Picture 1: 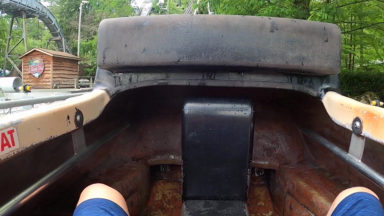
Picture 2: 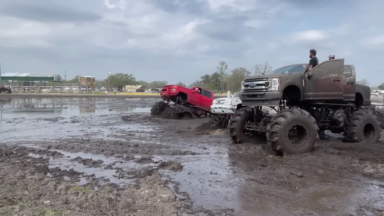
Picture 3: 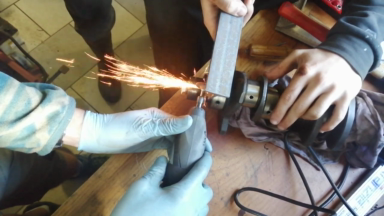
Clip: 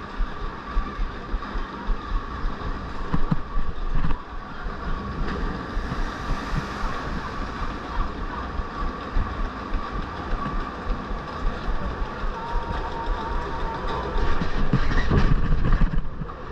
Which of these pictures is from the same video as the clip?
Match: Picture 1